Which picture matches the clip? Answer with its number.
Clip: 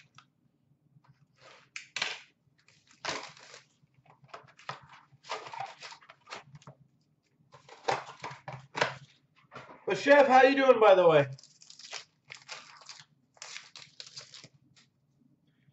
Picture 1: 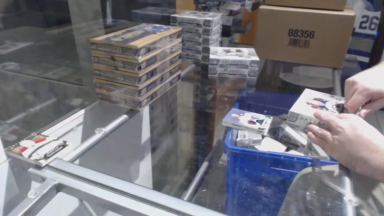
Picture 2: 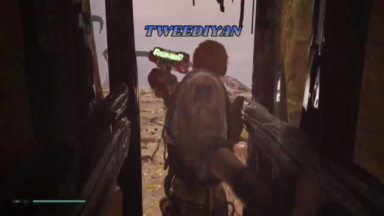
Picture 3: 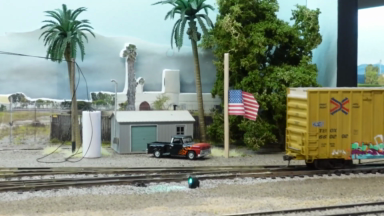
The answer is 1